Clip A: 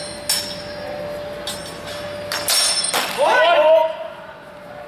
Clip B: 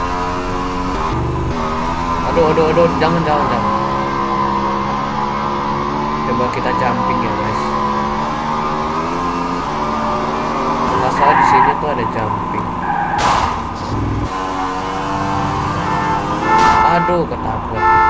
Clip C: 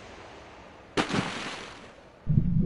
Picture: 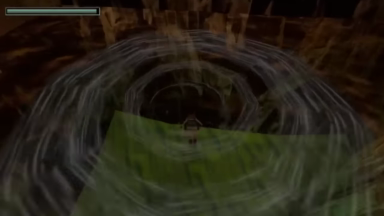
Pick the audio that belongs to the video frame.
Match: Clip C